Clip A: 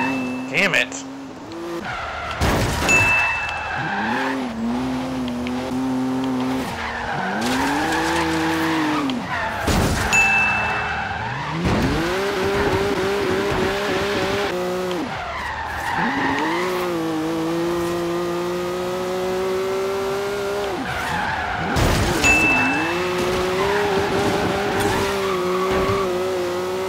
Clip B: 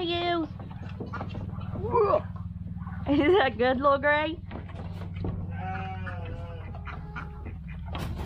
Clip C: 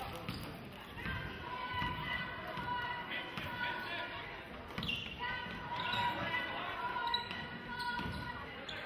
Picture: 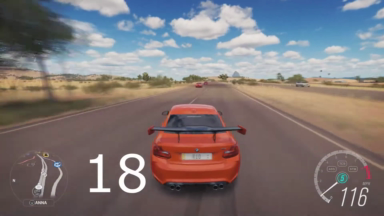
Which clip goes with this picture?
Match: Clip A